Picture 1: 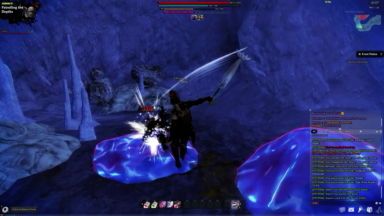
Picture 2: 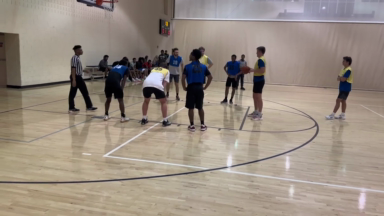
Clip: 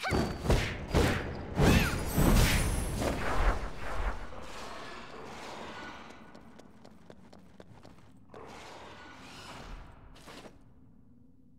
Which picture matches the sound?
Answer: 1